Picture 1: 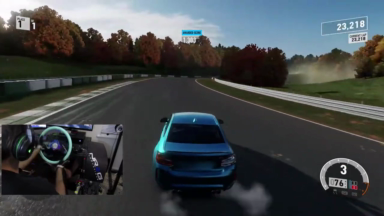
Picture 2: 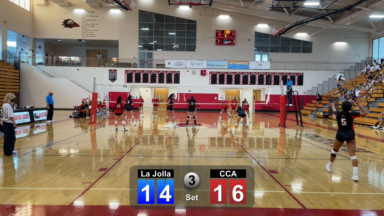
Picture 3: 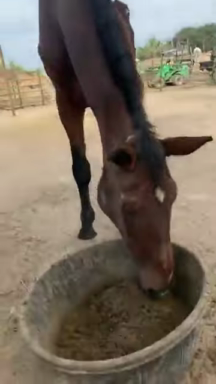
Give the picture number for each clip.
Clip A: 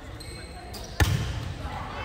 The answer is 2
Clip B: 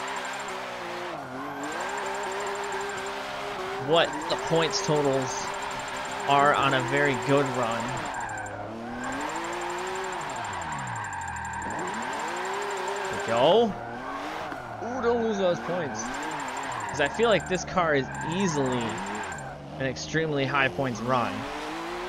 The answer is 1